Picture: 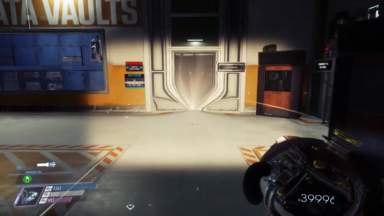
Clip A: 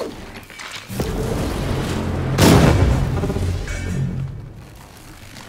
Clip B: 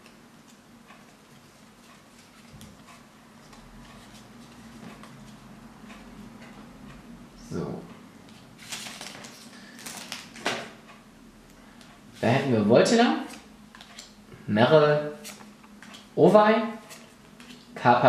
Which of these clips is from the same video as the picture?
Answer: A